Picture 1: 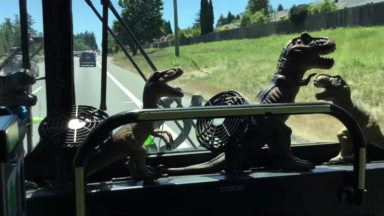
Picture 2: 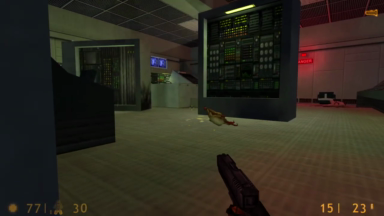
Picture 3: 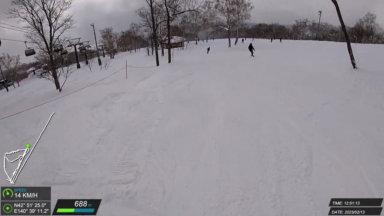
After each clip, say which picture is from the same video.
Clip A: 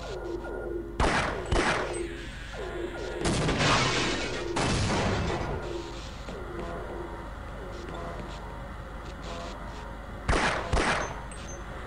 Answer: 2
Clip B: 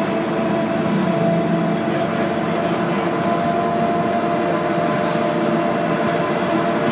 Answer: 1